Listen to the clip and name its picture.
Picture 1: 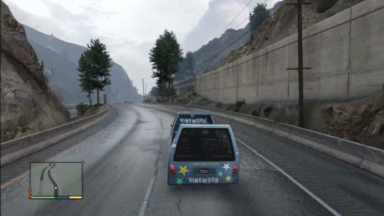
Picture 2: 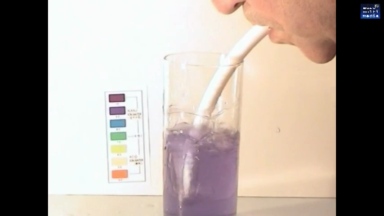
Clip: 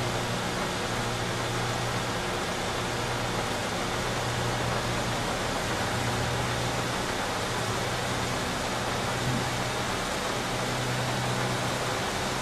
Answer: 1